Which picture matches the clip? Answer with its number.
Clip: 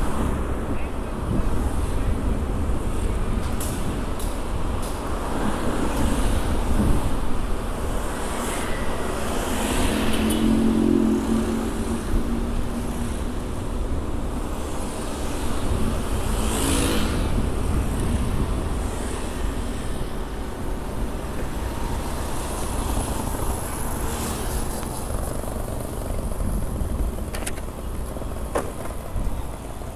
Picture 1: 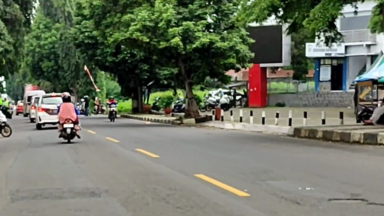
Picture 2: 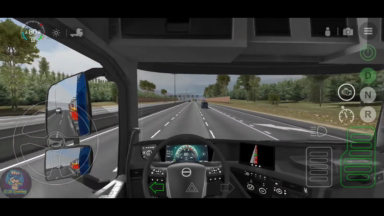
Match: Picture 1